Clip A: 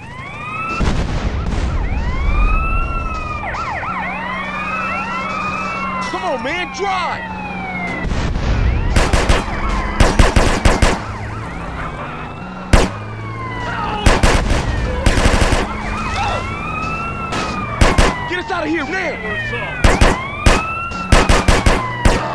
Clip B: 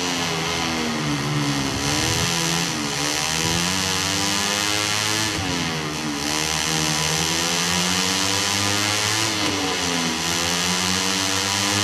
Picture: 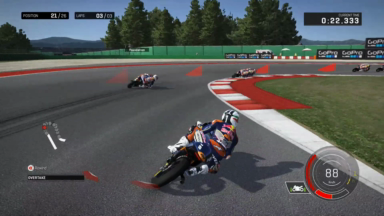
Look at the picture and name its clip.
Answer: B